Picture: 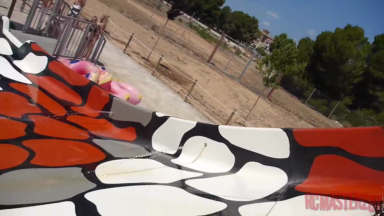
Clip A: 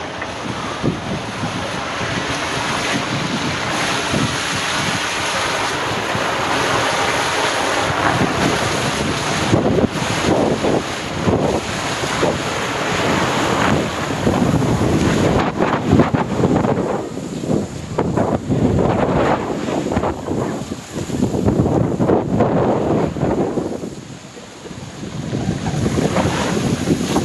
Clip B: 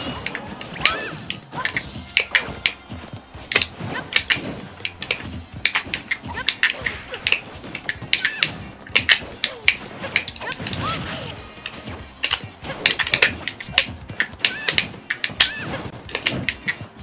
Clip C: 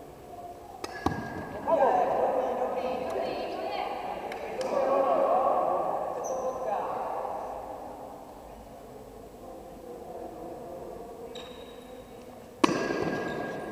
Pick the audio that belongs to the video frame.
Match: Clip A